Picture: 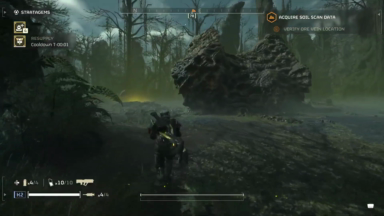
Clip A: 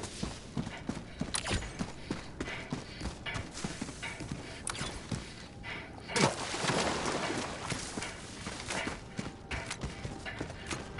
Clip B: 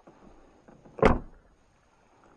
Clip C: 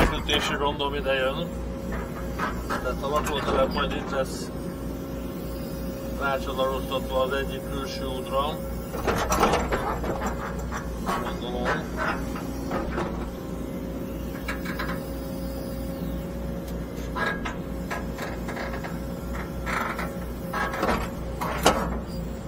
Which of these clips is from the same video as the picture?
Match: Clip A